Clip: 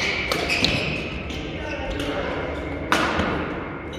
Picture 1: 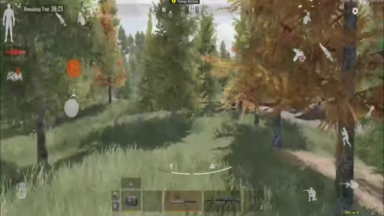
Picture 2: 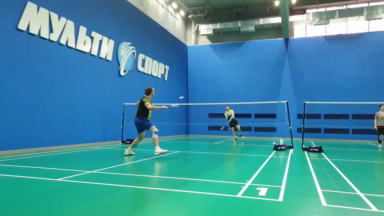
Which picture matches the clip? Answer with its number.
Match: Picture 2